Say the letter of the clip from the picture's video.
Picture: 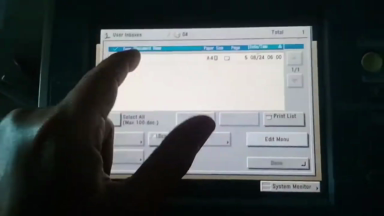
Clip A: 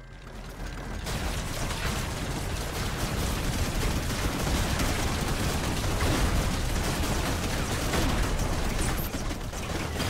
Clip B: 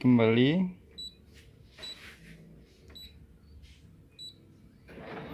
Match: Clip B